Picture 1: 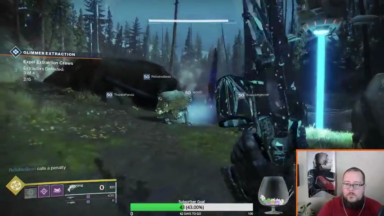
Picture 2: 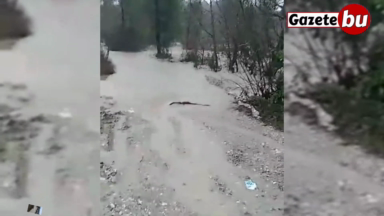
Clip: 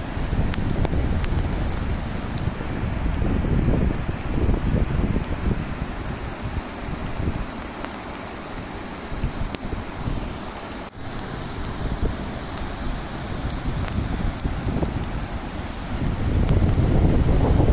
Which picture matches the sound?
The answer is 2